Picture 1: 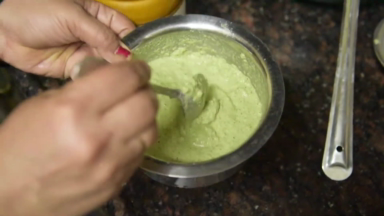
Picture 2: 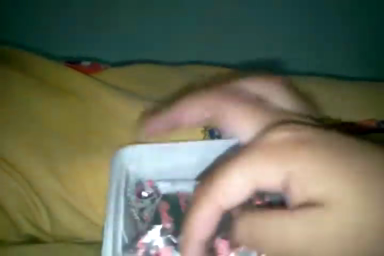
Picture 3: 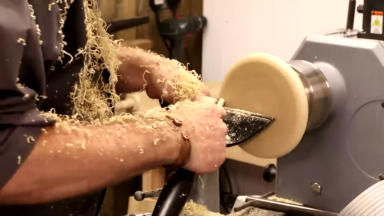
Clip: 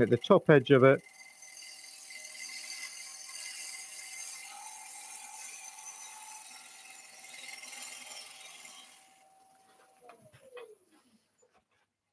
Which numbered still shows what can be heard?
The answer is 3